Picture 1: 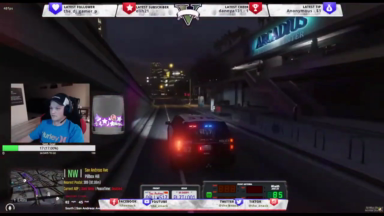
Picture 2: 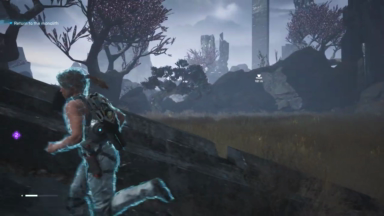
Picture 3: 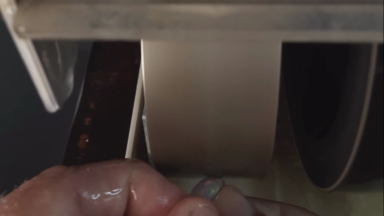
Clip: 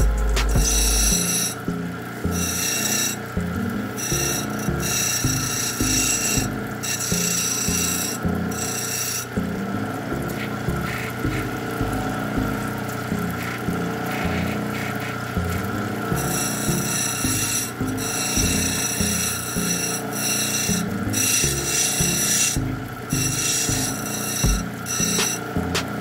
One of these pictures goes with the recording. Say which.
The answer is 3